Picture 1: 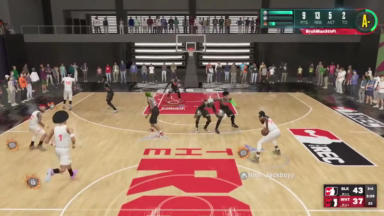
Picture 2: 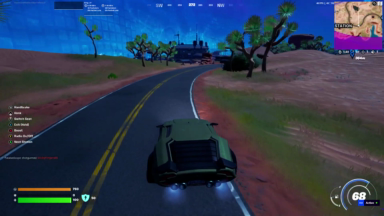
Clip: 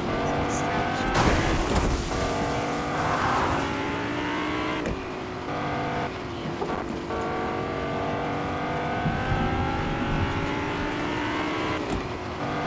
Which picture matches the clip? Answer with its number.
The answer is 2